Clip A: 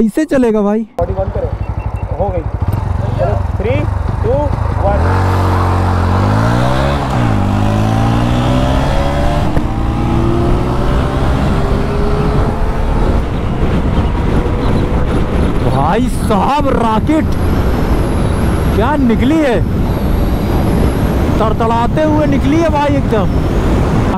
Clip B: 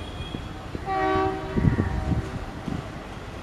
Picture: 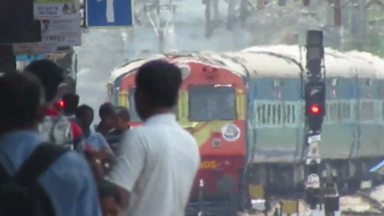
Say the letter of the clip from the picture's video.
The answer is B